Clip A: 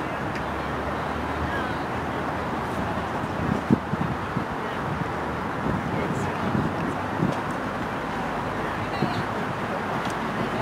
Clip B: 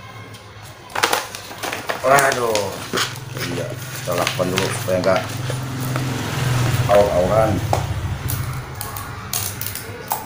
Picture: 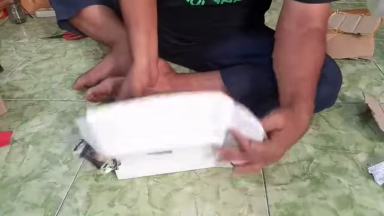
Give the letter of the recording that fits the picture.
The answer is B